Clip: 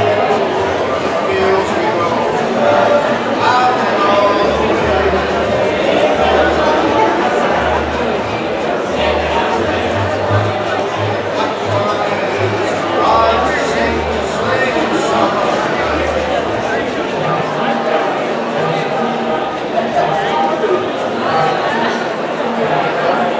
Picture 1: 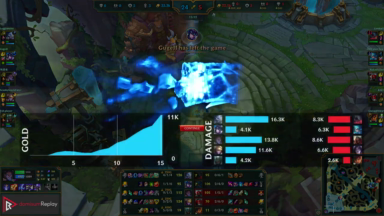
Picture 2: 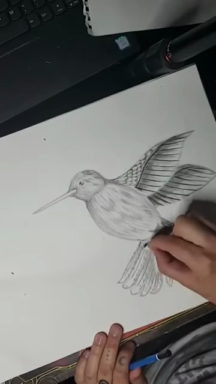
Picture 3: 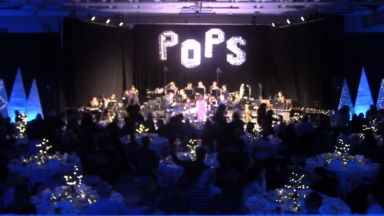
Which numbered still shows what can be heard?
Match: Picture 3